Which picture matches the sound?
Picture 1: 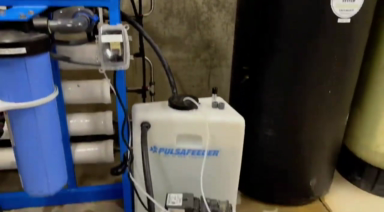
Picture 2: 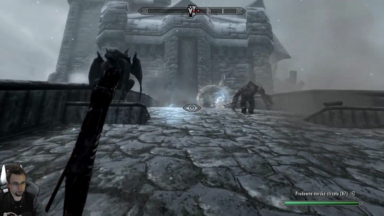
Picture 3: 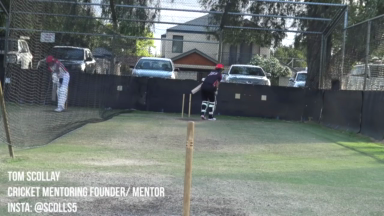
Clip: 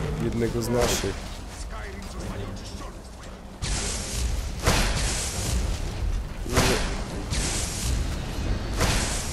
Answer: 2